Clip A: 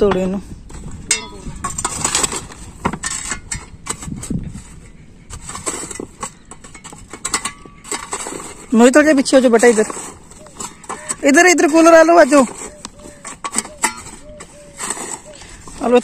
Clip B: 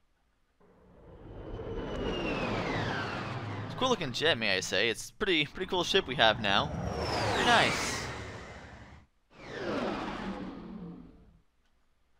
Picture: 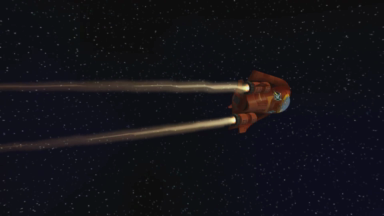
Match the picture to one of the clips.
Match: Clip B